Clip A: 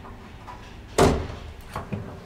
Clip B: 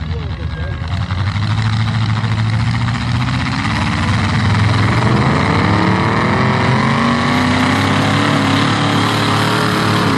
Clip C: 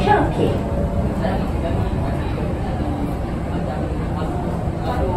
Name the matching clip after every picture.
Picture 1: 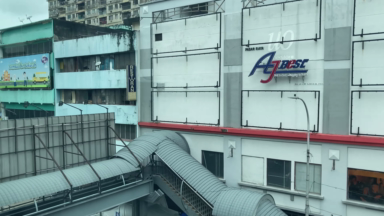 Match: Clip C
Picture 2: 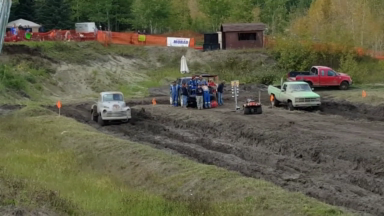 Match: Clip B